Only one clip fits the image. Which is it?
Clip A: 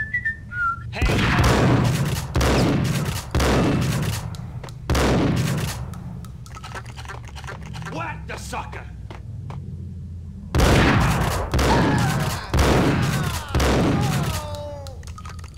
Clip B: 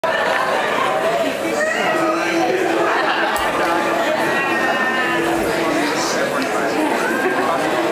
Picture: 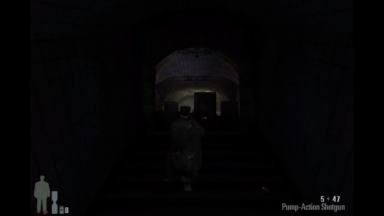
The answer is A